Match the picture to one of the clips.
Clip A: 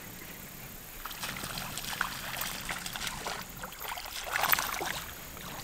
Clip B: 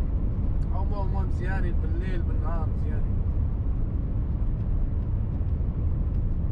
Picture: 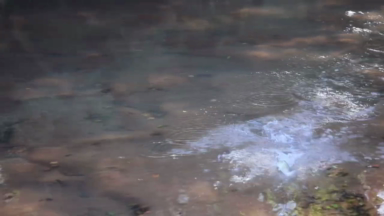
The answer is A